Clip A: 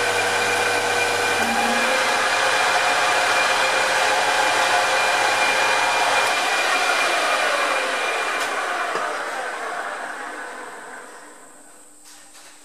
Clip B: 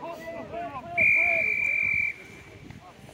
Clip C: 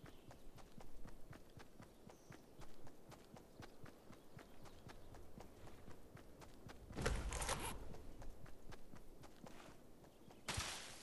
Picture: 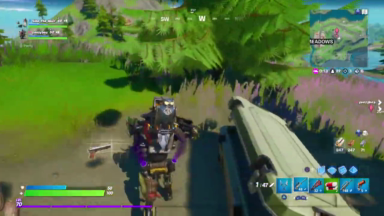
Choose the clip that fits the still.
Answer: C